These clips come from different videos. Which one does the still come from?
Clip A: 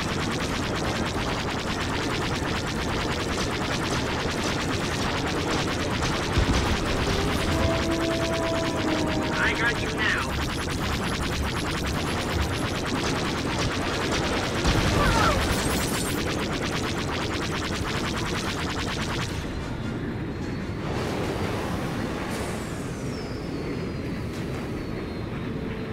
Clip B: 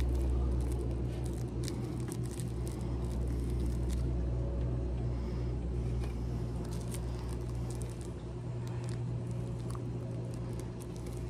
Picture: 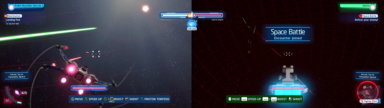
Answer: A